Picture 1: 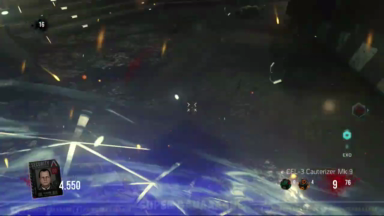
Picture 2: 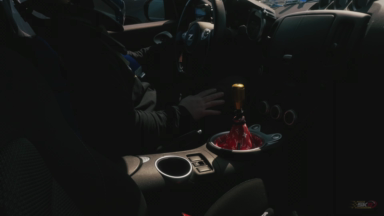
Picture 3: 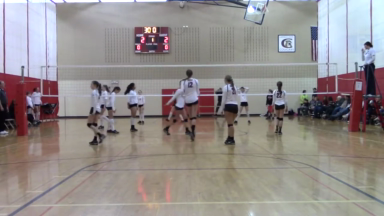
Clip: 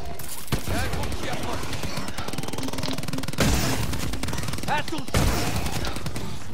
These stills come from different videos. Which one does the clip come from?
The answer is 1